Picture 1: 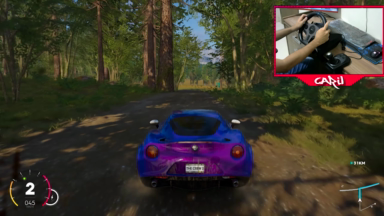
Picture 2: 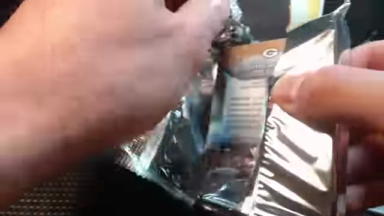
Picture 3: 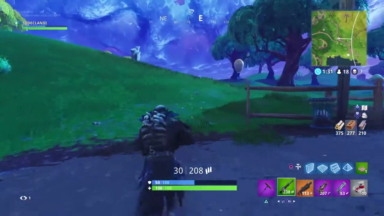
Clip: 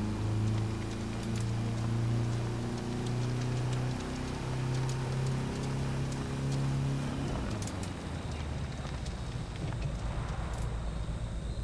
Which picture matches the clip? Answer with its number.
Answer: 1